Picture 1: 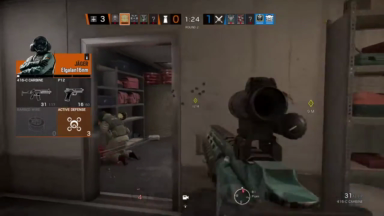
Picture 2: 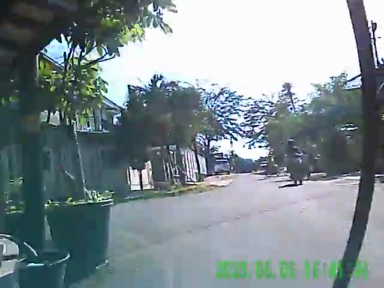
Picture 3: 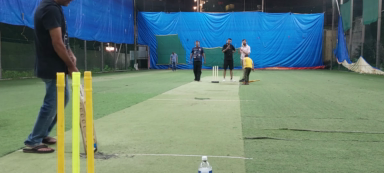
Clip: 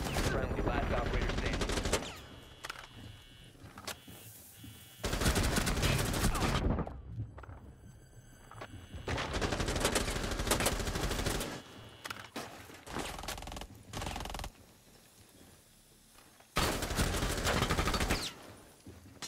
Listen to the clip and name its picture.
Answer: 1